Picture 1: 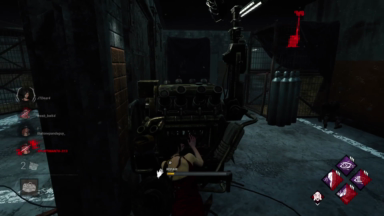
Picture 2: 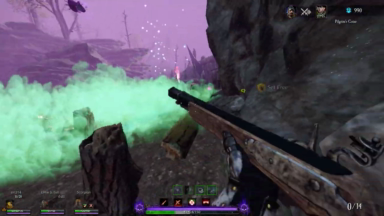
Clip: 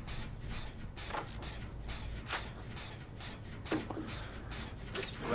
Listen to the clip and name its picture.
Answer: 1